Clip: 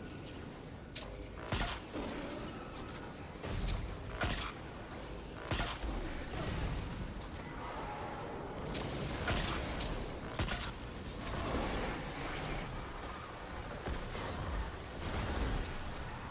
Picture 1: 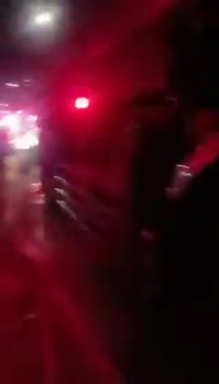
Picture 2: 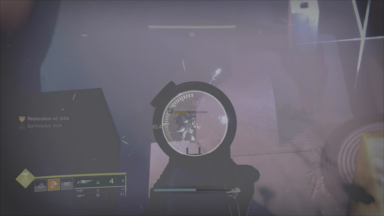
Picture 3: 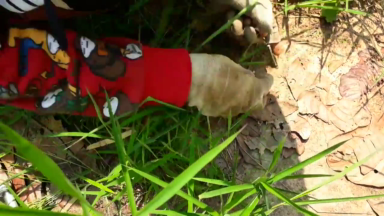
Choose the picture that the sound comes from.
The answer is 2